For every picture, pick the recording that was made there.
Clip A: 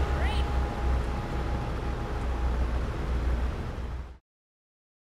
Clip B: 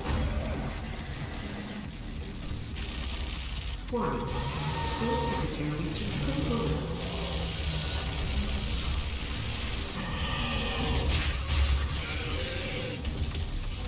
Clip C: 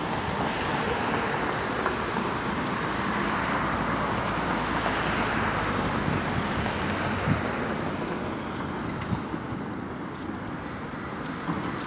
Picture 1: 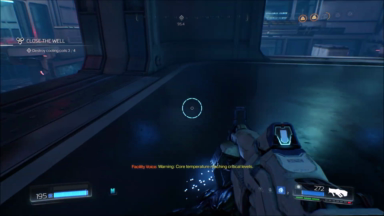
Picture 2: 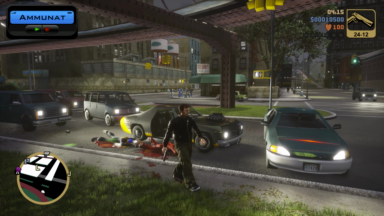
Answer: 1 B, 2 A